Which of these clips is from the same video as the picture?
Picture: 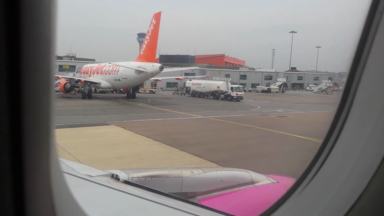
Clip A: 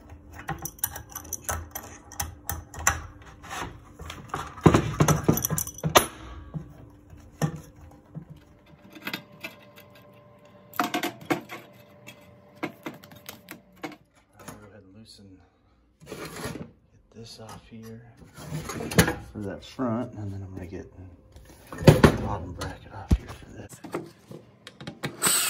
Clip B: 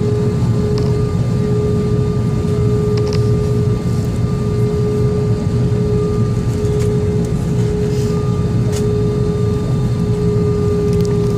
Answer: B